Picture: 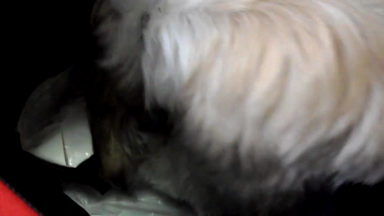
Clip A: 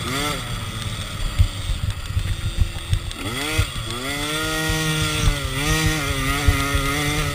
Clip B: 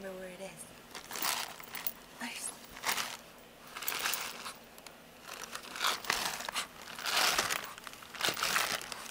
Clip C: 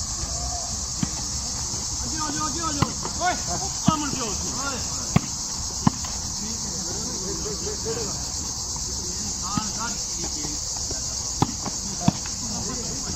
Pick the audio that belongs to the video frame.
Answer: B